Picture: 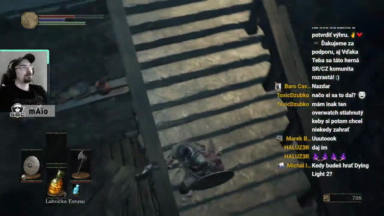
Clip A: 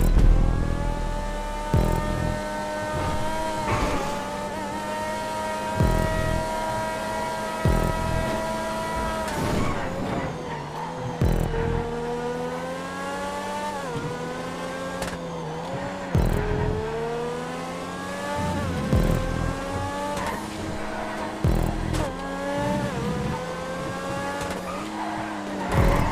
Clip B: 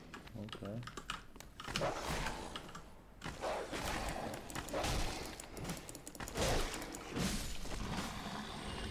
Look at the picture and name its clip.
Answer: B